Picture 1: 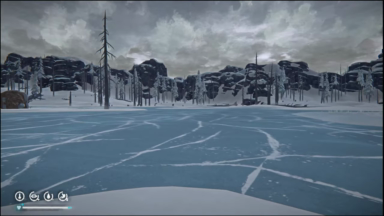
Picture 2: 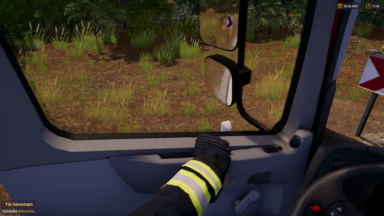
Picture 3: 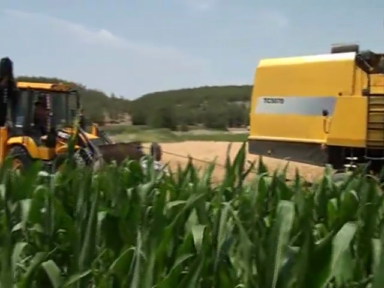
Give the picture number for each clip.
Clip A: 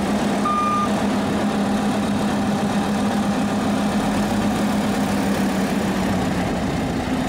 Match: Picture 3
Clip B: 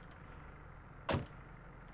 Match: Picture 2